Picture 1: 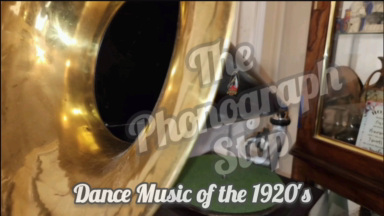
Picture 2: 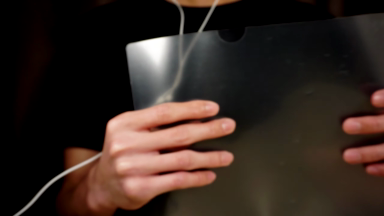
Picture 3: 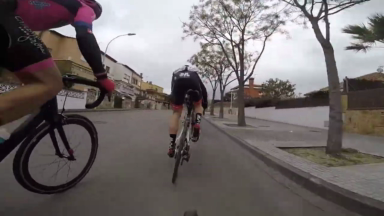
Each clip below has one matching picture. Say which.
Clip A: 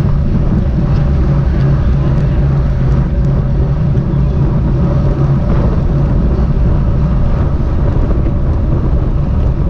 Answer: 3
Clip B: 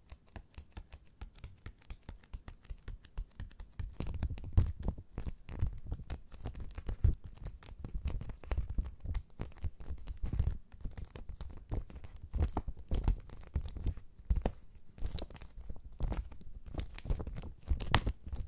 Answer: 2